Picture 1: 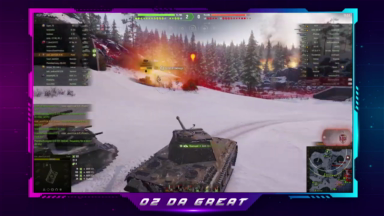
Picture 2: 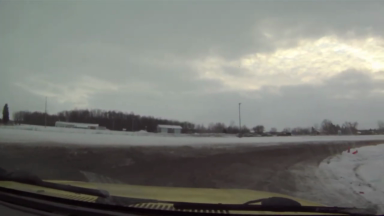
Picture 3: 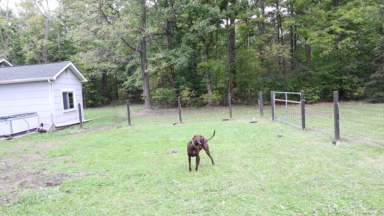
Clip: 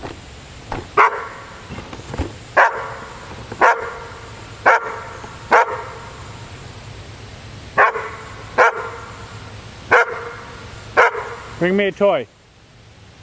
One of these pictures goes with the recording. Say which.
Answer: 3